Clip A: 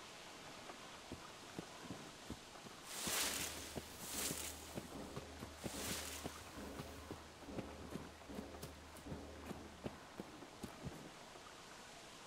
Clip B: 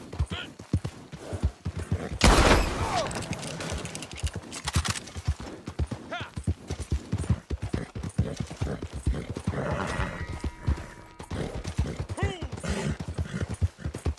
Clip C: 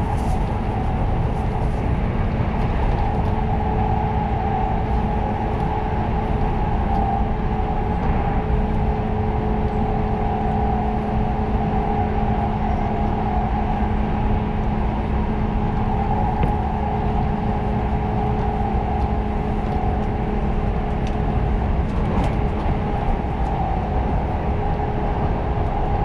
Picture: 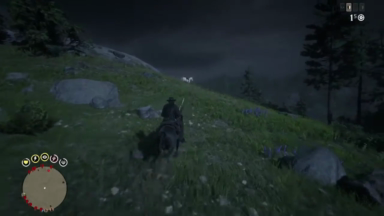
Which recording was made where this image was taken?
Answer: B